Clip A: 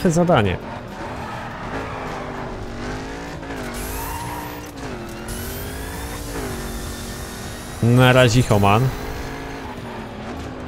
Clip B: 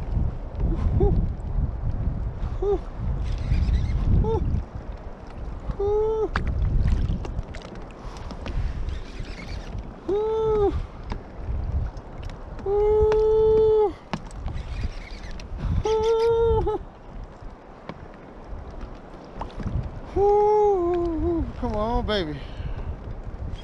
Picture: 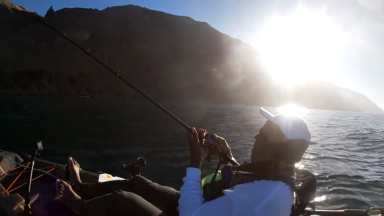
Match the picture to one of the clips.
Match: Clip B